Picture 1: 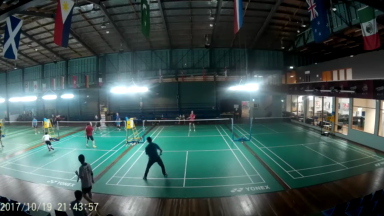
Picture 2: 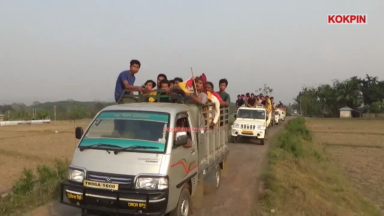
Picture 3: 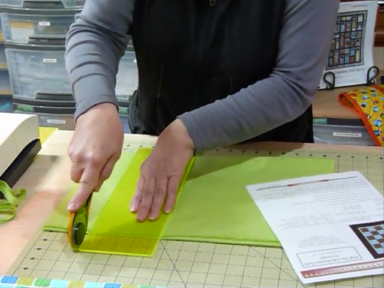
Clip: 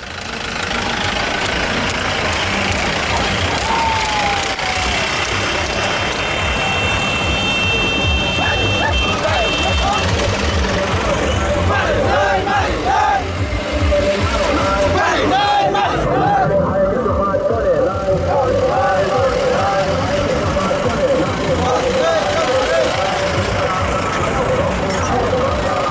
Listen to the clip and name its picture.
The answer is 2